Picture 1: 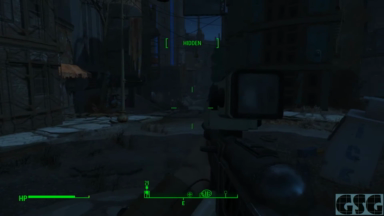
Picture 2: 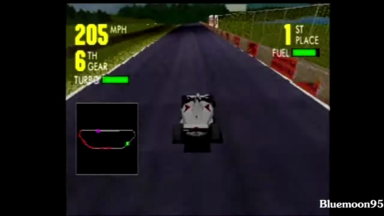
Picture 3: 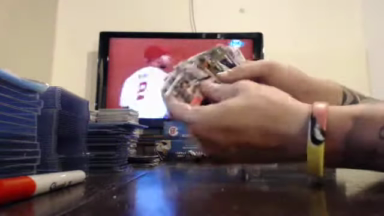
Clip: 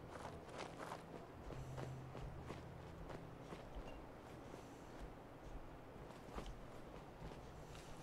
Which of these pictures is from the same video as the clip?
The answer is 1